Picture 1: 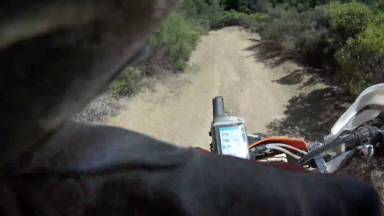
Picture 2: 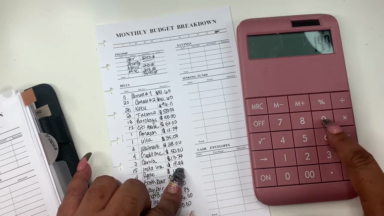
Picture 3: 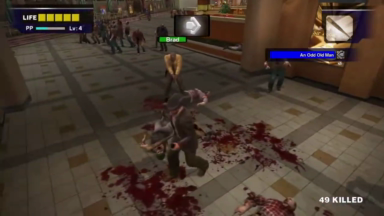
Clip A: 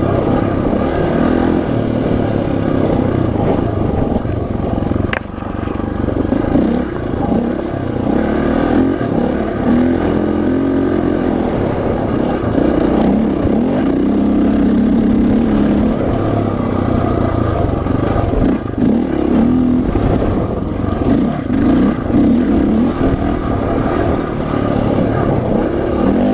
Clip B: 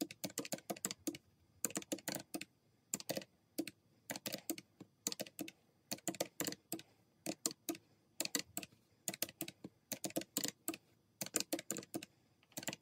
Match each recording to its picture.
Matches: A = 1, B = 2